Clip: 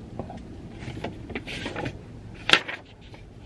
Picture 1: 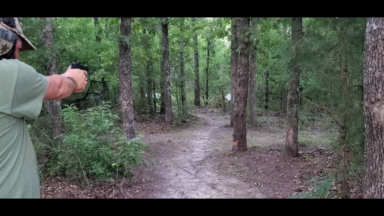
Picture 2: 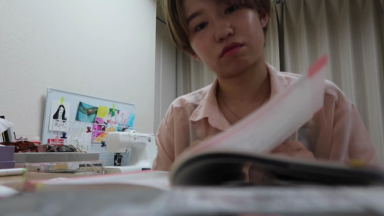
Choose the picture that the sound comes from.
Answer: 2